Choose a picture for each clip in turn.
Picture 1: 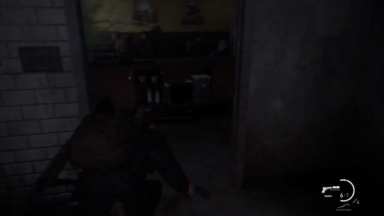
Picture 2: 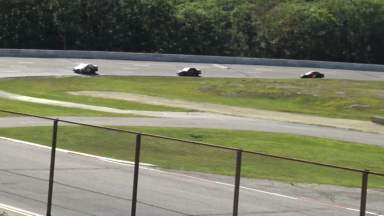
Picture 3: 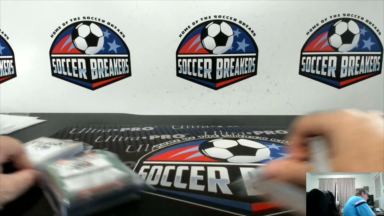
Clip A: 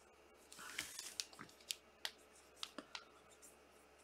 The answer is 3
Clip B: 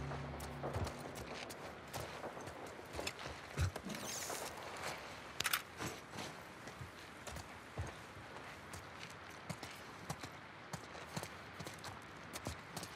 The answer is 1